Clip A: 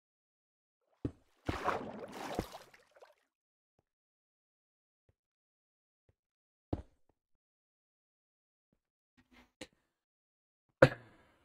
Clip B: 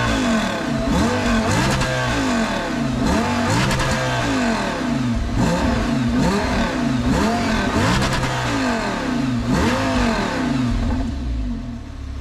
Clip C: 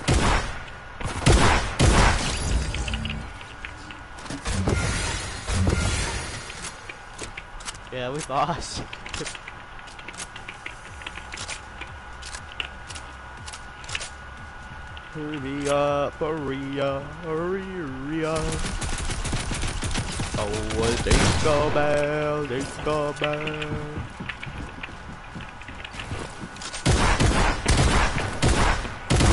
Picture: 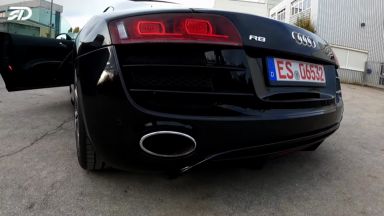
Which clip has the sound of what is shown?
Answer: B